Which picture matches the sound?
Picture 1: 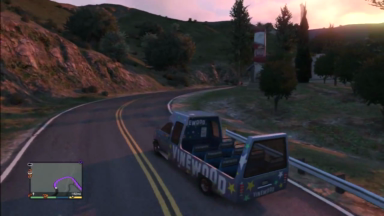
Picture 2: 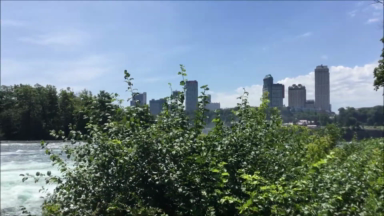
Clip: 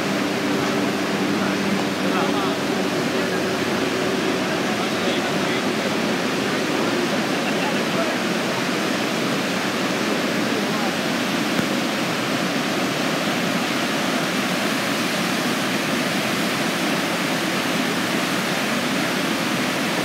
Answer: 2